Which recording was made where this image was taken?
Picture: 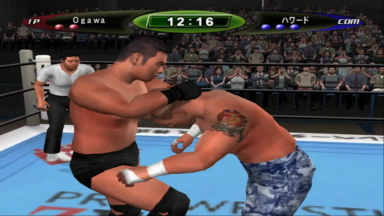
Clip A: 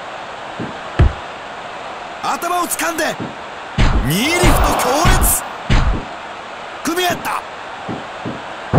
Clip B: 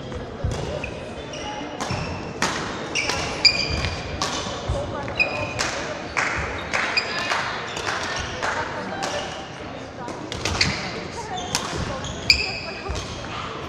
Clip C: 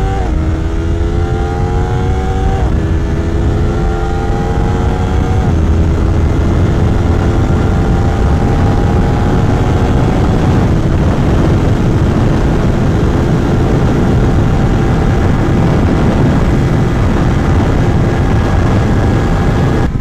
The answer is A